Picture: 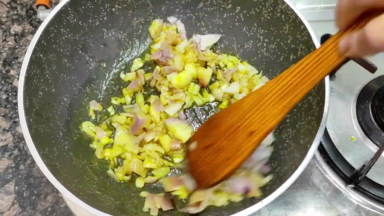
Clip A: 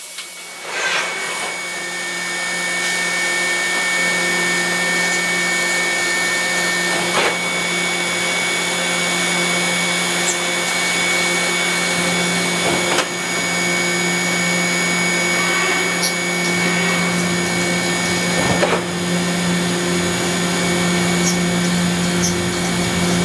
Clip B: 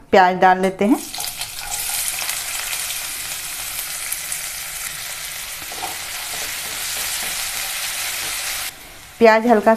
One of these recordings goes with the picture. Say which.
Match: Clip B